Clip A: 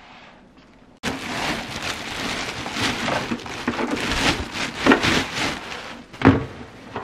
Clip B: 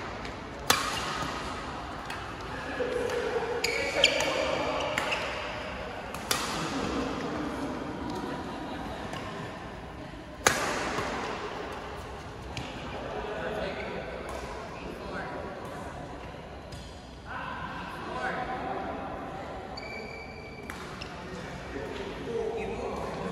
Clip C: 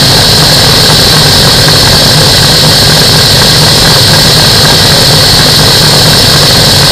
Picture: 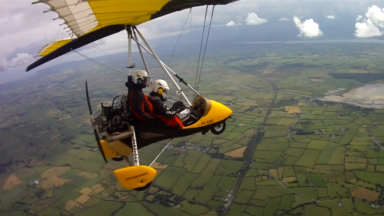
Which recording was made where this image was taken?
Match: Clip C